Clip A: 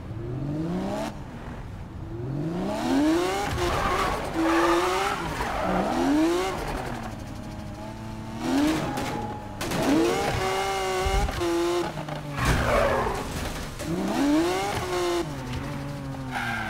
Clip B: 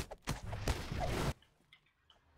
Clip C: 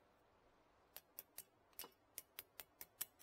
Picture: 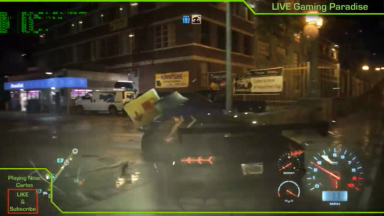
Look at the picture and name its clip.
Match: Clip A